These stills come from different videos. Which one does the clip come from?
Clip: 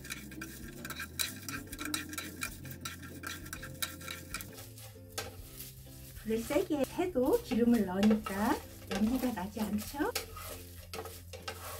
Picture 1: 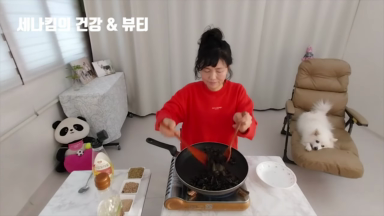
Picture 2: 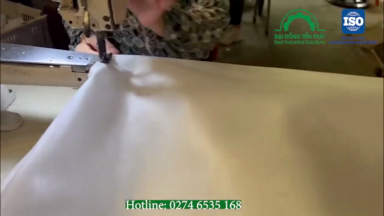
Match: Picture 1